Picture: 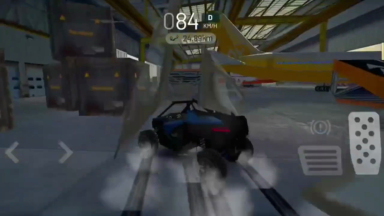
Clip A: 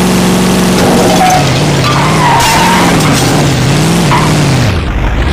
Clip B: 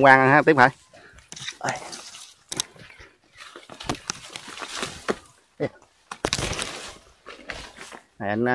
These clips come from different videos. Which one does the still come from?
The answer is A